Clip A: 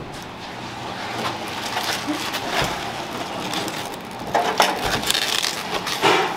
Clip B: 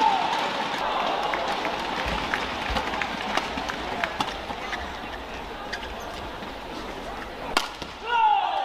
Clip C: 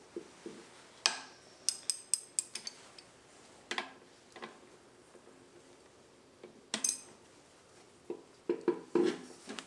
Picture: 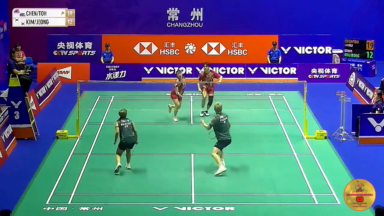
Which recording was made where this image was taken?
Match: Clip B